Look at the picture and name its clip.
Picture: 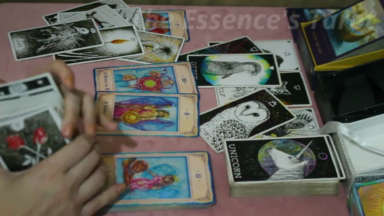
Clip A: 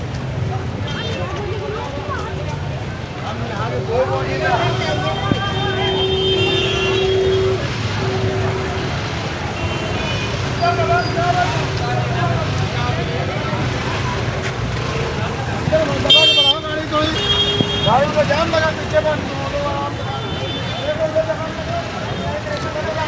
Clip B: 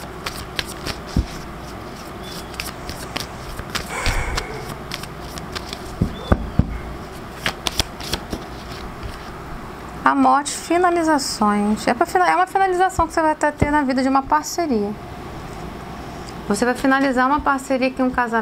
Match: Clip B